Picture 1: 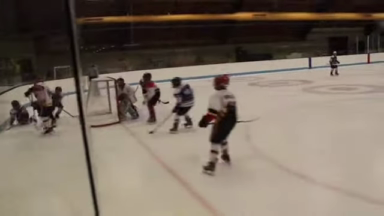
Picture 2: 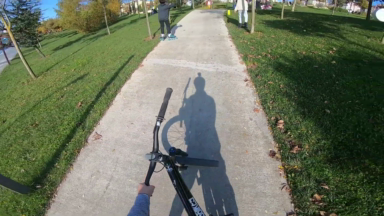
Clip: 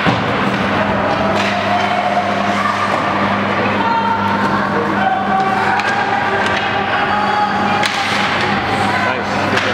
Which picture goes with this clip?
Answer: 1